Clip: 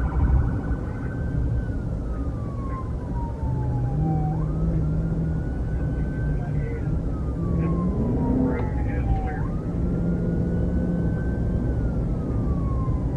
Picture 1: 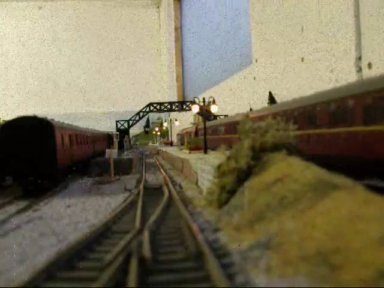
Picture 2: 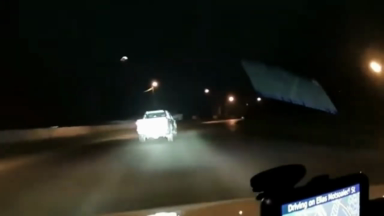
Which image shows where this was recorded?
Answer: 2